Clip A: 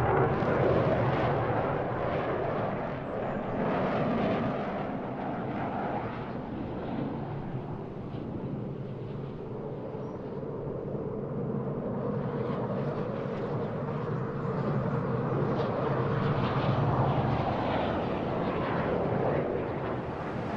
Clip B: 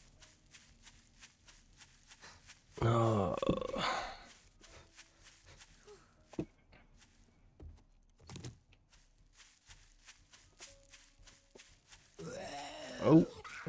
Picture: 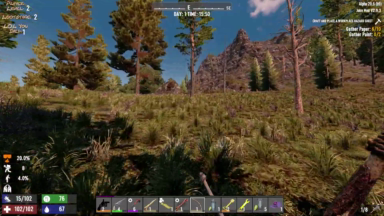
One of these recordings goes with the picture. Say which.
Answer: B